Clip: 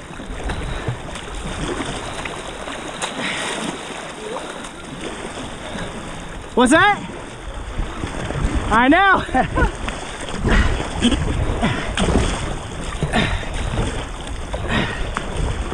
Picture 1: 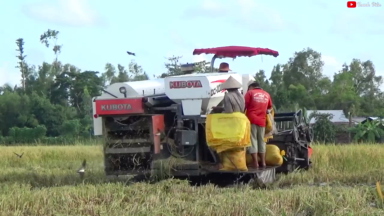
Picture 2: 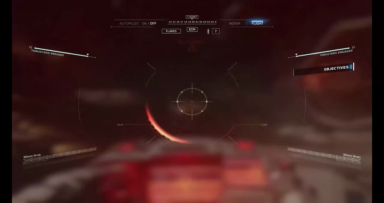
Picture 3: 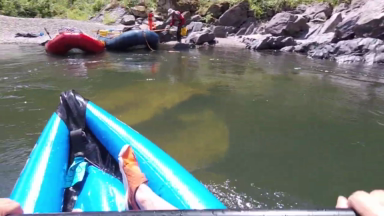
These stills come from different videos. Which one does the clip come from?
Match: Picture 3